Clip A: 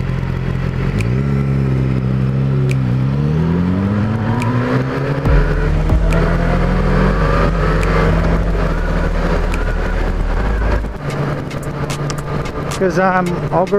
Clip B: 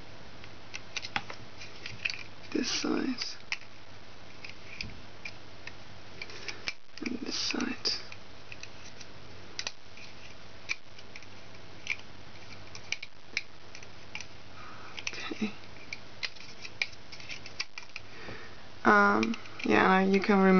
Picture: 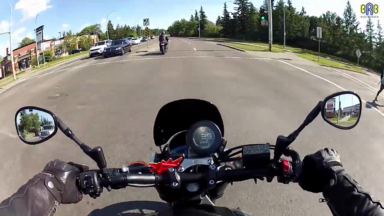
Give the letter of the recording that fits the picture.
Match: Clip A